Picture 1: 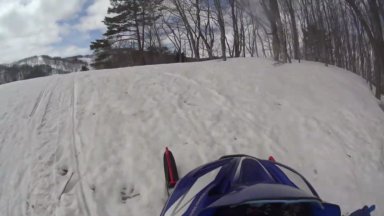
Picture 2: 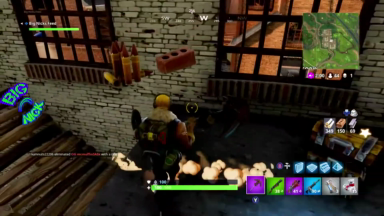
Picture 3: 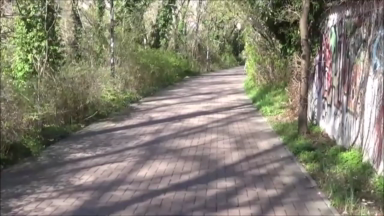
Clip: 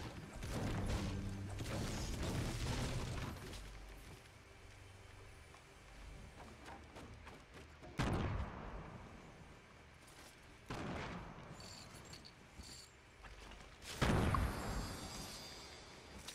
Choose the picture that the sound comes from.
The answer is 2